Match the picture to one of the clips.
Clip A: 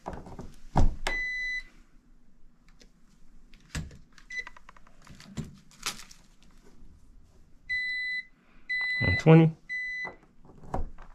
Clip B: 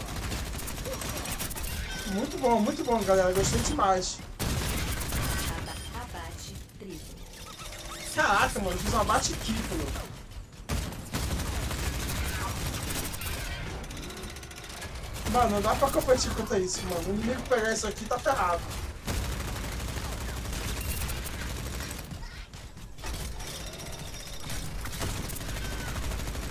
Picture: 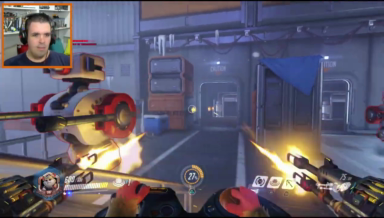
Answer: B